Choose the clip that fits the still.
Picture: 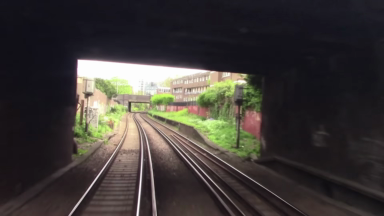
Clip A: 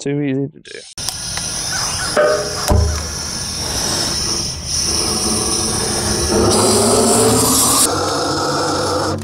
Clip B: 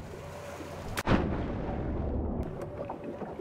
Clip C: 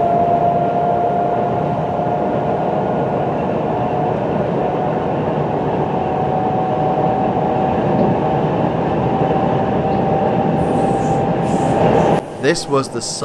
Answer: C